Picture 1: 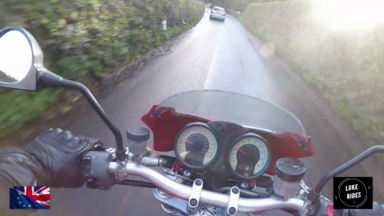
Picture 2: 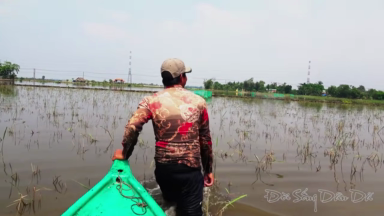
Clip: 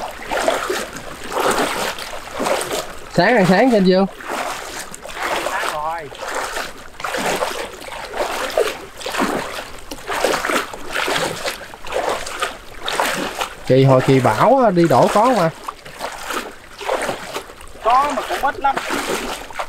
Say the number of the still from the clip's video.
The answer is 2